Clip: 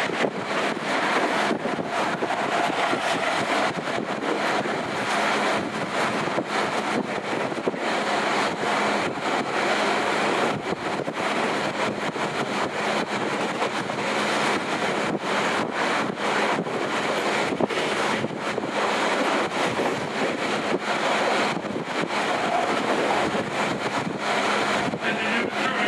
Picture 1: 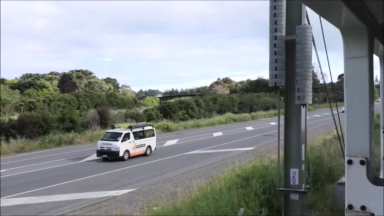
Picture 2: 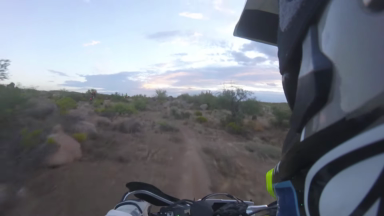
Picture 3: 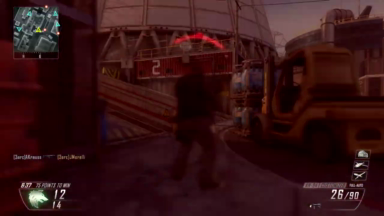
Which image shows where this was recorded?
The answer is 1